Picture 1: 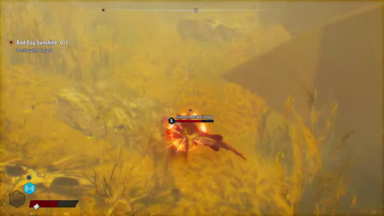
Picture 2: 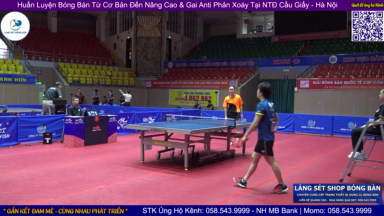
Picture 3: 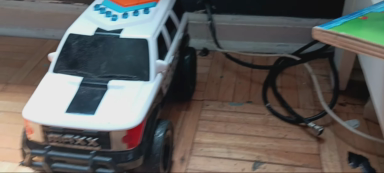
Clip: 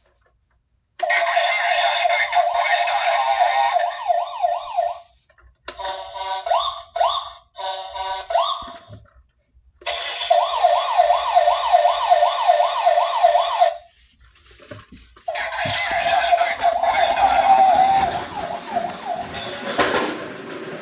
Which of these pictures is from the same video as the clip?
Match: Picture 3